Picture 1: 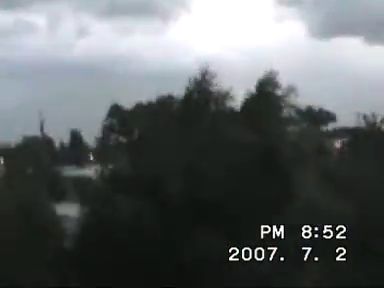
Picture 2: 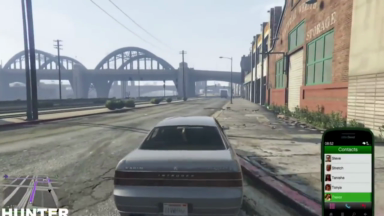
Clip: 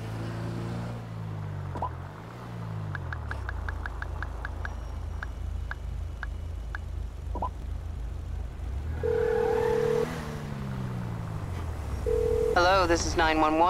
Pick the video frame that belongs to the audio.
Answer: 2